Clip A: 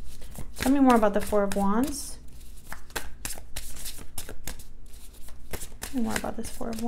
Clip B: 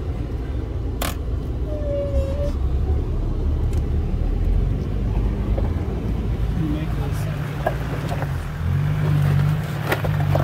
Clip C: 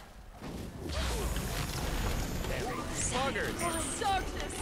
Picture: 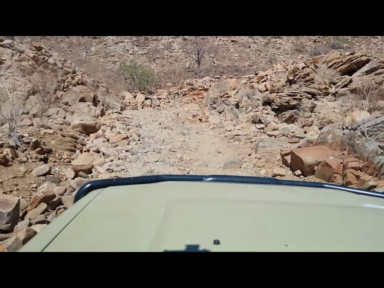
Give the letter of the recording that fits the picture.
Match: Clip B